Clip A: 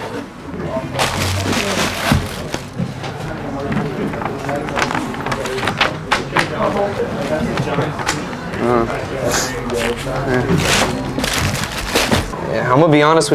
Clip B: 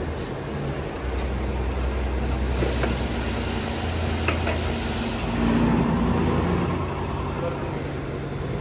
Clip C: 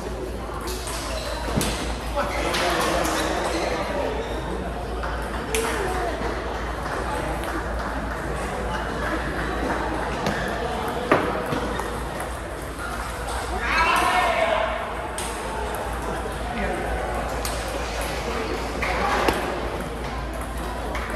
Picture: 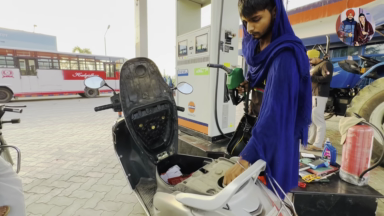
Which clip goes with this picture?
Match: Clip B